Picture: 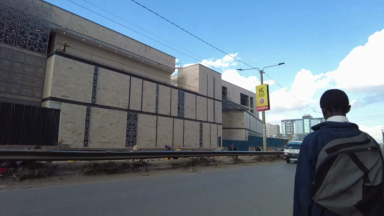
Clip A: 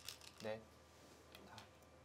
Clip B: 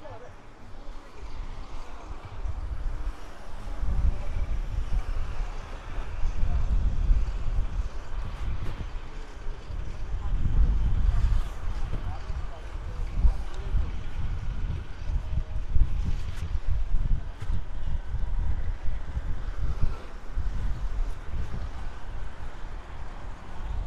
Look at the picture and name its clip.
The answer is B